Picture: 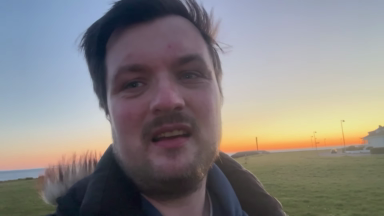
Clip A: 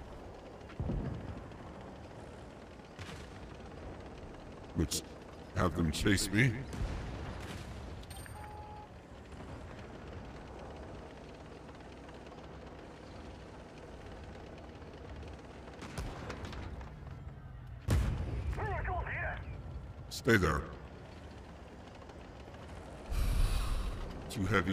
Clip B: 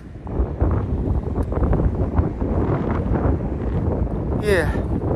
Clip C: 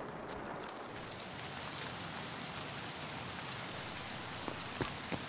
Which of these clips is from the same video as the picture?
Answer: B